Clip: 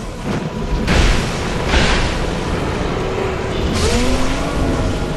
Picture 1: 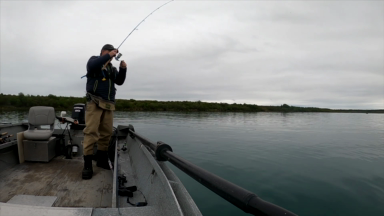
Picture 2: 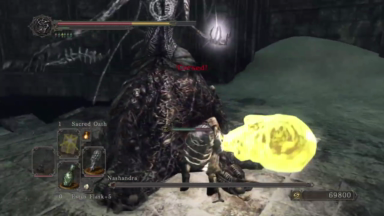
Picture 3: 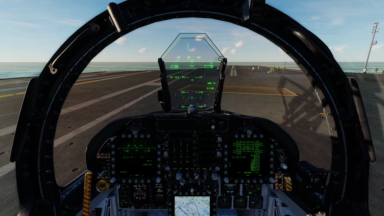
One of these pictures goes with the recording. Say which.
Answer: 2